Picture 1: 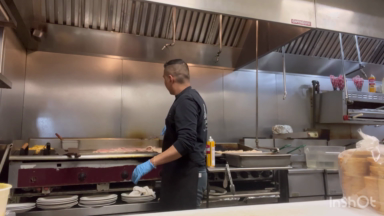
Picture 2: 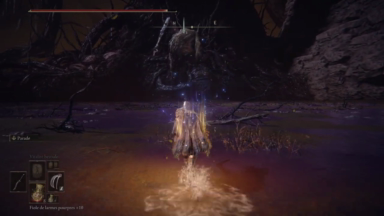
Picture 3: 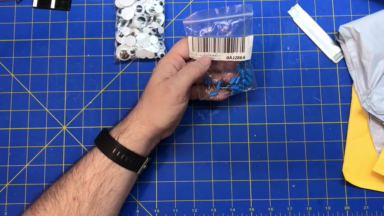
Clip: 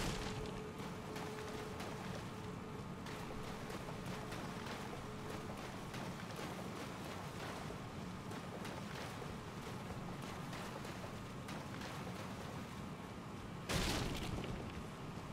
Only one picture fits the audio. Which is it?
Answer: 2